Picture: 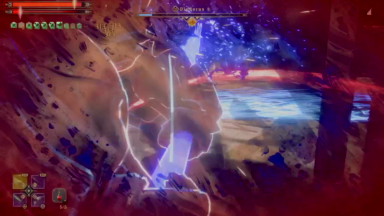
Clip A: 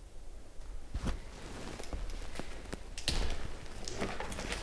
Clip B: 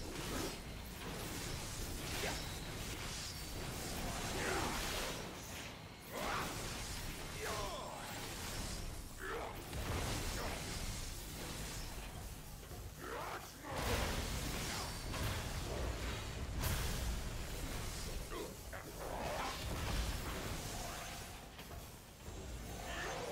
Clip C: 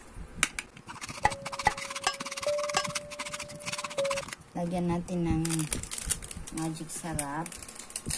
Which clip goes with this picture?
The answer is B